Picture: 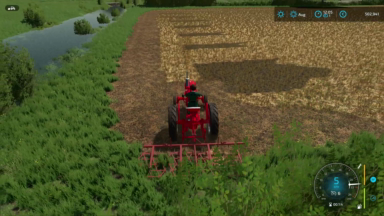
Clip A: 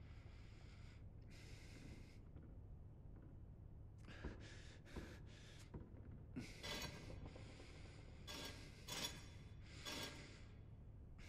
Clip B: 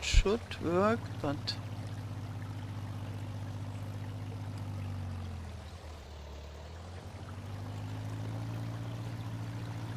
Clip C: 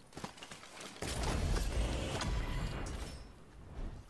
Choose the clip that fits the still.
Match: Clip B